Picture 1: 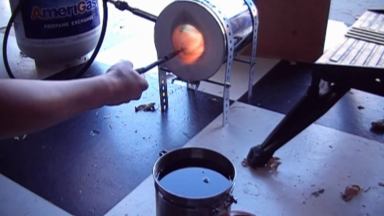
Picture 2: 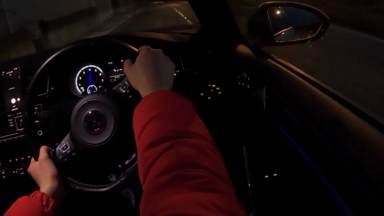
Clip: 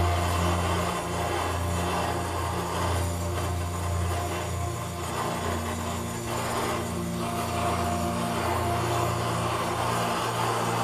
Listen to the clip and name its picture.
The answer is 1